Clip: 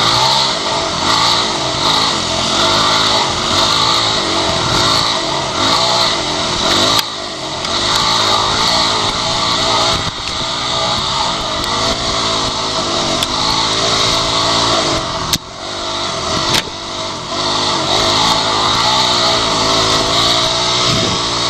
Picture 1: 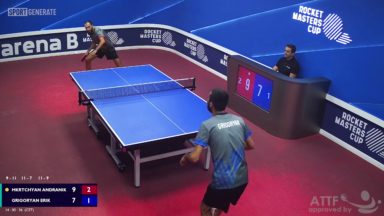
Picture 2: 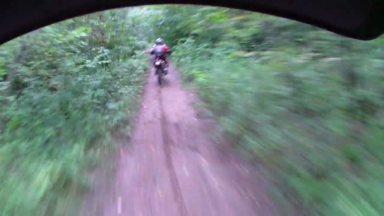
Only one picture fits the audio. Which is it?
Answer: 2